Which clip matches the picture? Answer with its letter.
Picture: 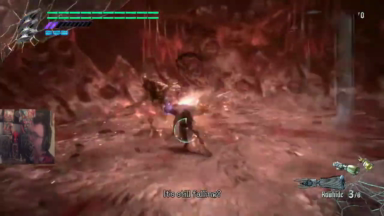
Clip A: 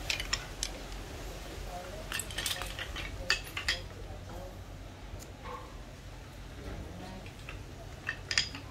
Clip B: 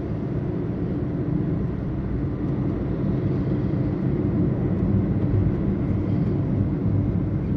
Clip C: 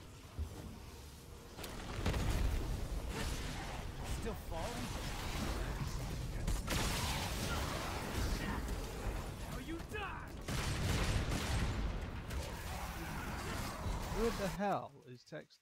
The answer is C